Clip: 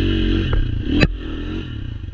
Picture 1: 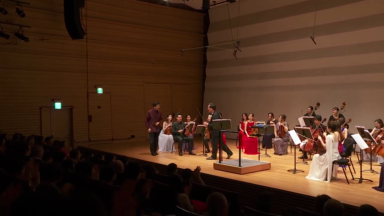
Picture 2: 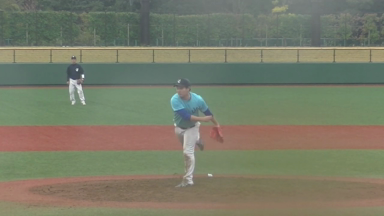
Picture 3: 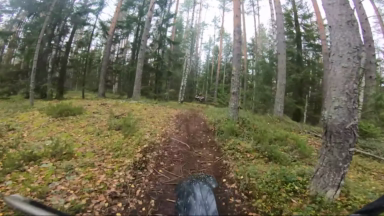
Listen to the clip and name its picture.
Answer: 3